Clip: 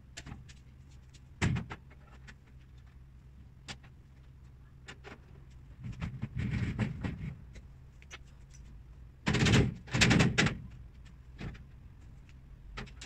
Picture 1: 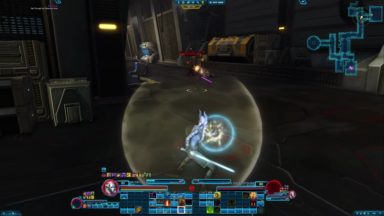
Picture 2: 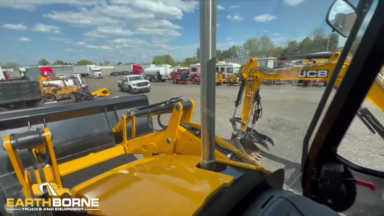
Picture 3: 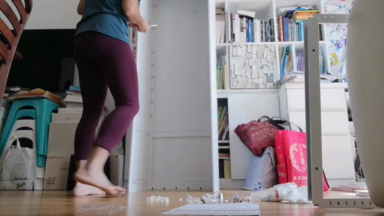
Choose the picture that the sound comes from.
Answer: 3